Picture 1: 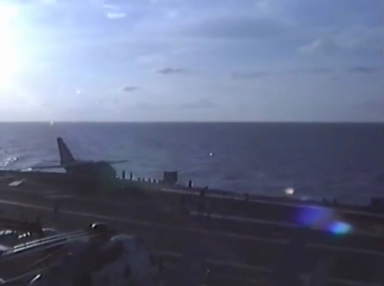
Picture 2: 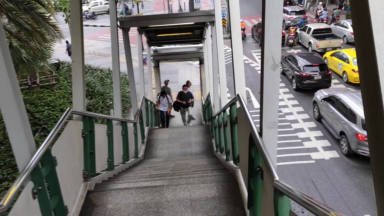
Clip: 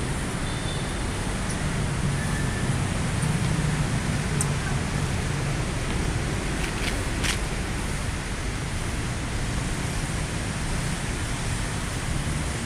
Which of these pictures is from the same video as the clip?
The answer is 2